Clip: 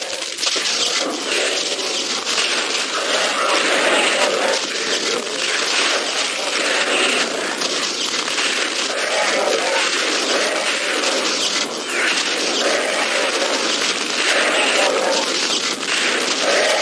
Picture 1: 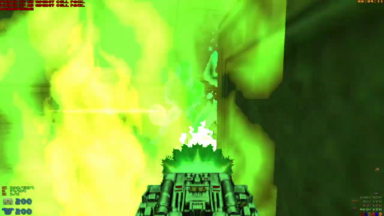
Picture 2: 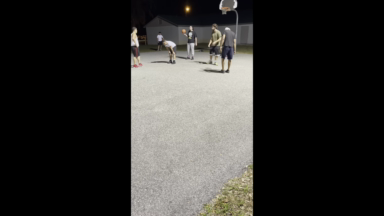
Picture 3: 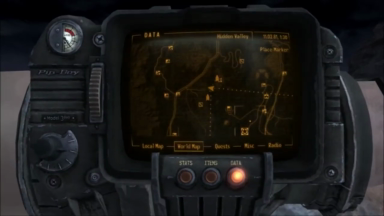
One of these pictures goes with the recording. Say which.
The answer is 1